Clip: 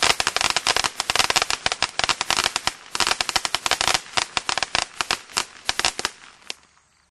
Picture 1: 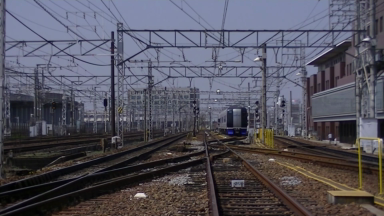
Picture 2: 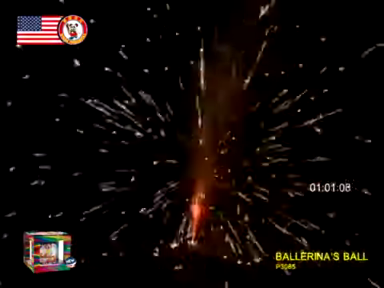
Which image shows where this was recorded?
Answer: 2